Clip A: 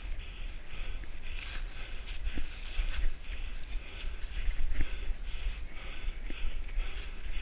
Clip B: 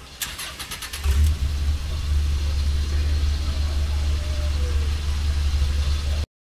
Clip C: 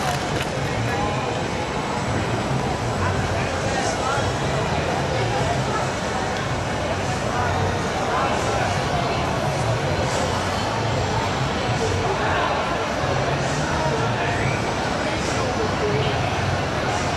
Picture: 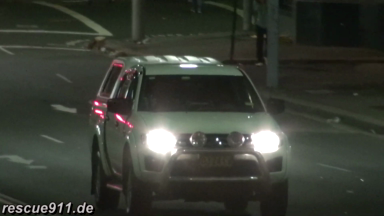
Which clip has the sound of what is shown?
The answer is C